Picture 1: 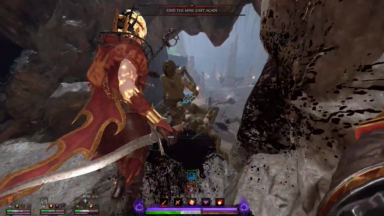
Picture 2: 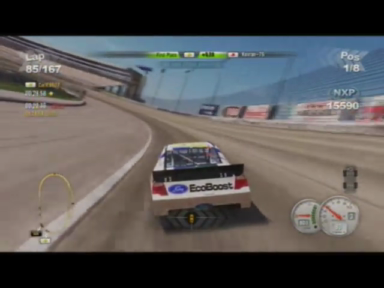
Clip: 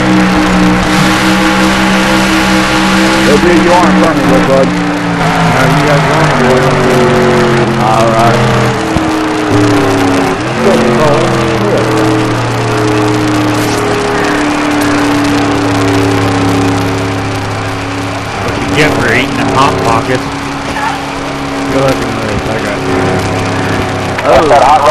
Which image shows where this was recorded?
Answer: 2